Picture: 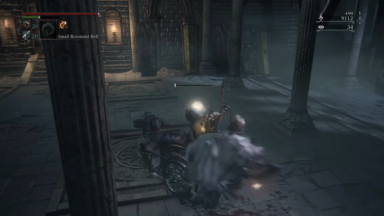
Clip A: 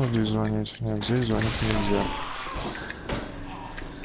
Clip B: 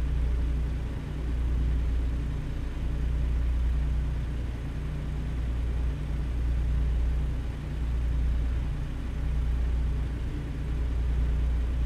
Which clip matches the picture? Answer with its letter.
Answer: A